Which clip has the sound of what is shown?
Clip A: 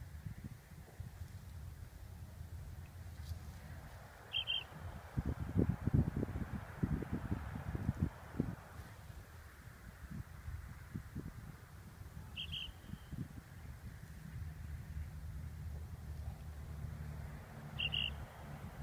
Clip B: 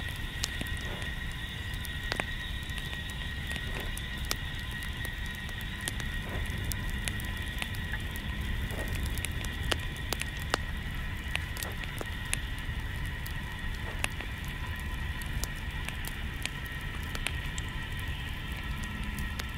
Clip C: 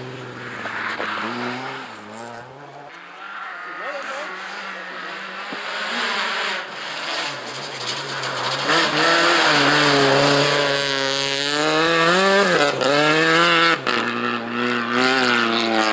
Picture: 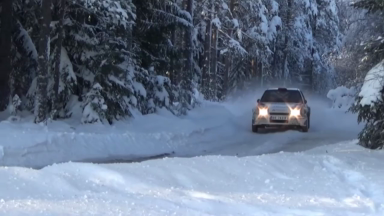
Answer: C